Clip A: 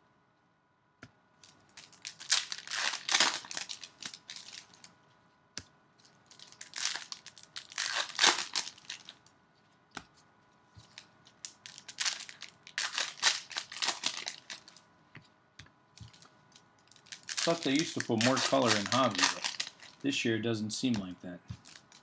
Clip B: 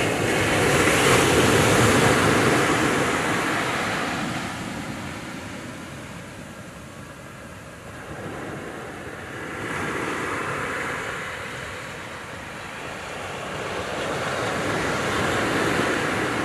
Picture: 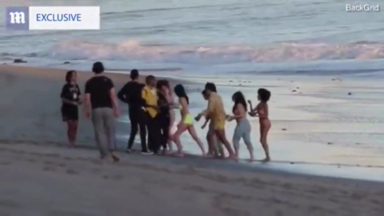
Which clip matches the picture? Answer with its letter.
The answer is B